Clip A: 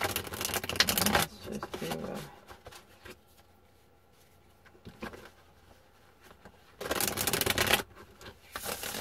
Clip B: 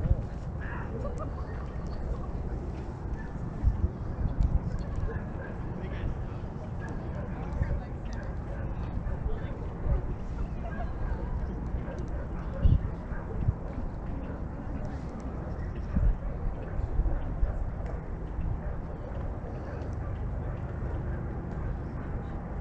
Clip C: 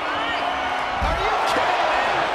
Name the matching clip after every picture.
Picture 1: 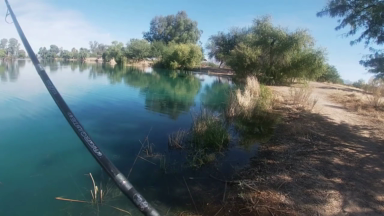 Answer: B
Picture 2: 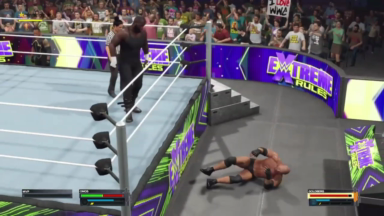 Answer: C